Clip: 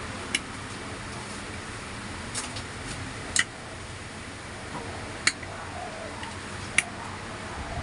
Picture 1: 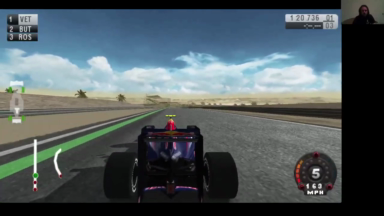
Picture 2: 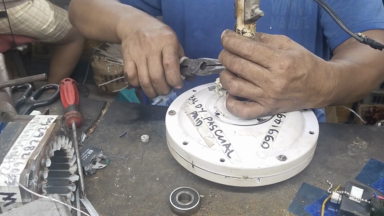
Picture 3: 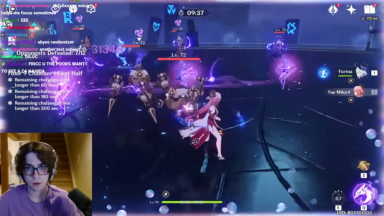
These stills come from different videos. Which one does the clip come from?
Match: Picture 2